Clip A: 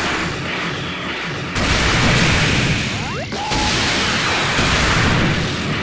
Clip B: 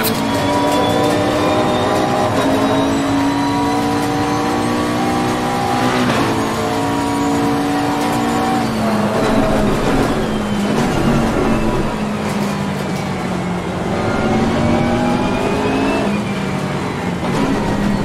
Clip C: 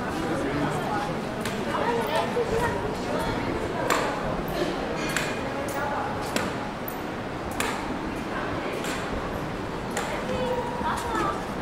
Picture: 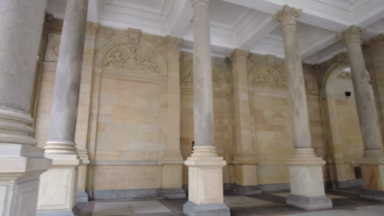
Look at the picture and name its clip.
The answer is C